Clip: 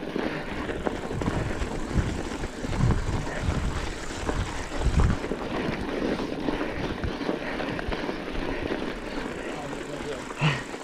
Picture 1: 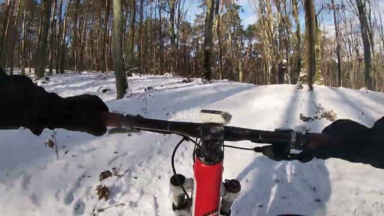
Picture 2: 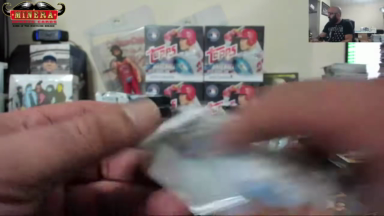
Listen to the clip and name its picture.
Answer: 1